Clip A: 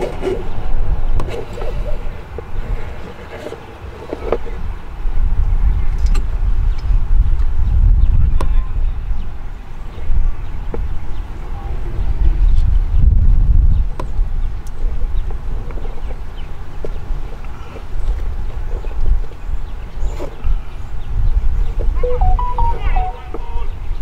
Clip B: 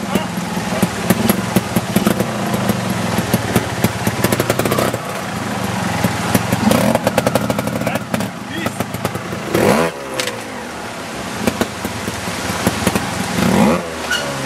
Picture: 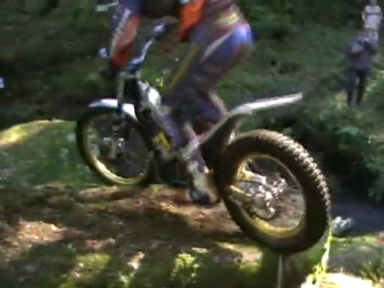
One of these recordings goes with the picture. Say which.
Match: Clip B